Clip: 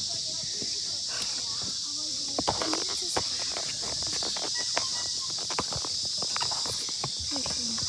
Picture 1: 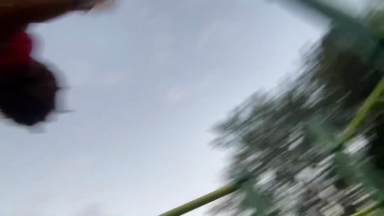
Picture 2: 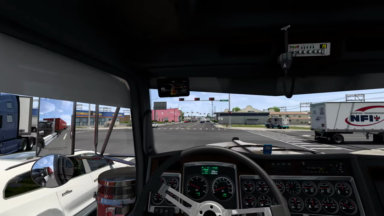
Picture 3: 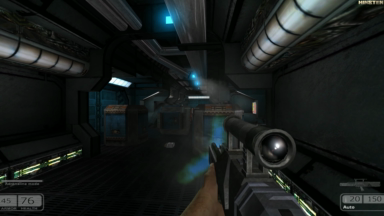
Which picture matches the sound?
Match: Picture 1